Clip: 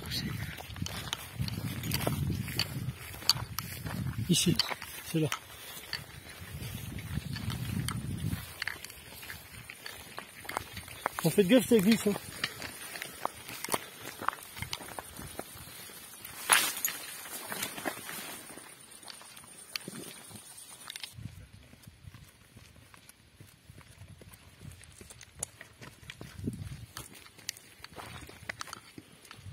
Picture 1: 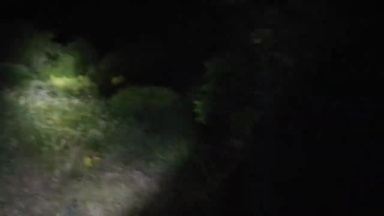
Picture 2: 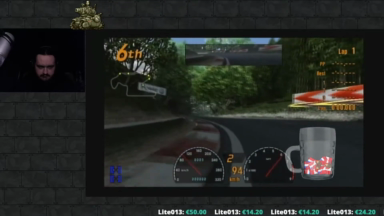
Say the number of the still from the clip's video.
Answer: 1